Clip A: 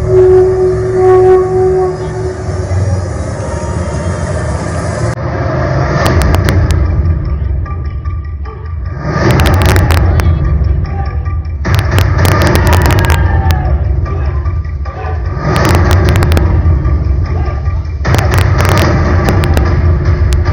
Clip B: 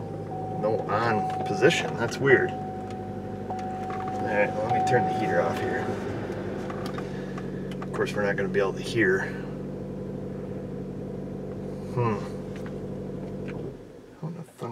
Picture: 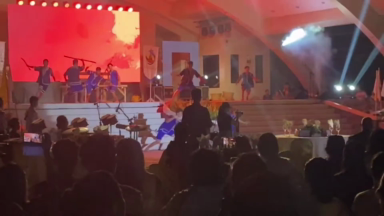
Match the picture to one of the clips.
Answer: A